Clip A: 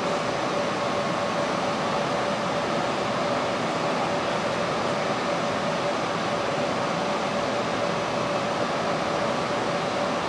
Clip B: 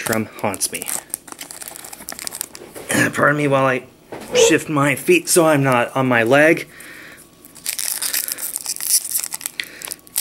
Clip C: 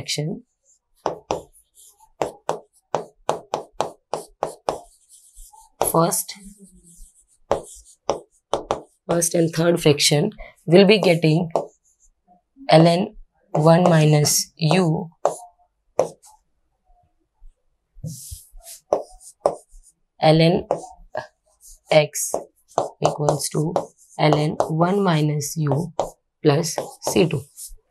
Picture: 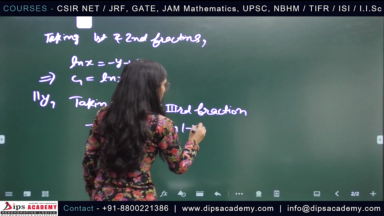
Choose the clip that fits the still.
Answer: C